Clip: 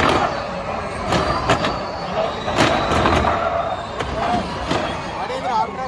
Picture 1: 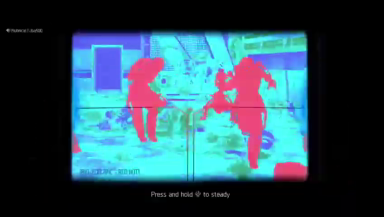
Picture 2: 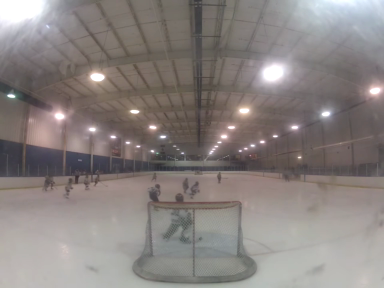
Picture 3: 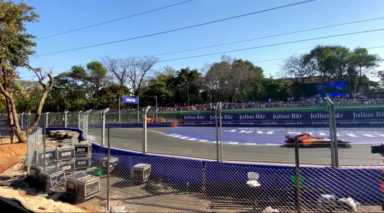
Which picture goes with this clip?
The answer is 3